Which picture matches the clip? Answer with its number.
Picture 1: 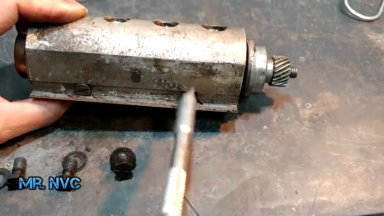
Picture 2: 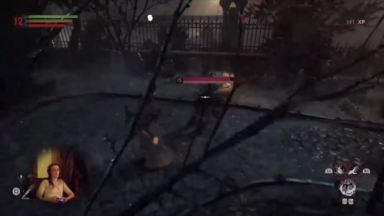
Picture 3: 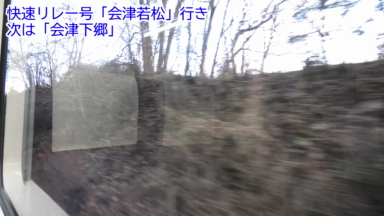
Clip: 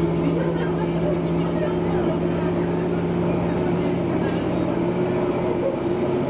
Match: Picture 3